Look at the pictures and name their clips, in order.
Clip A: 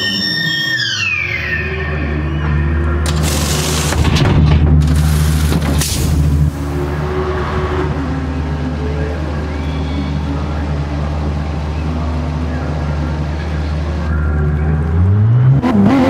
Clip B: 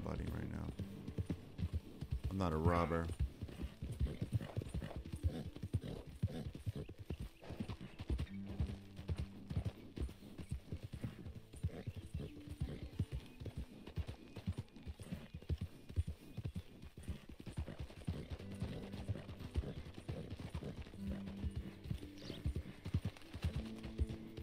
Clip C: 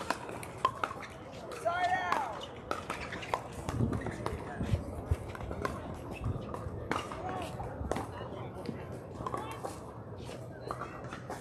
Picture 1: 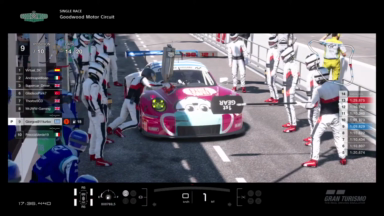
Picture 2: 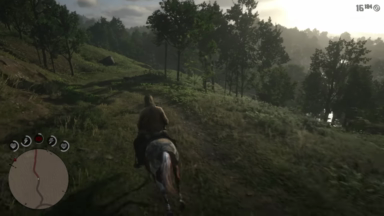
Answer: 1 A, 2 B